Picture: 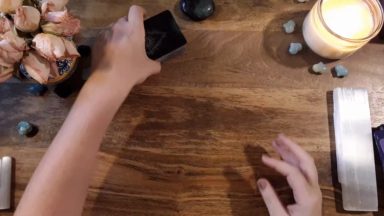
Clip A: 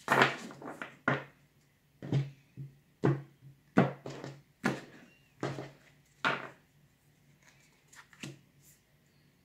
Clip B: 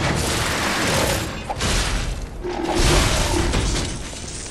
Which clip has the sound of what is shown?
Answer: A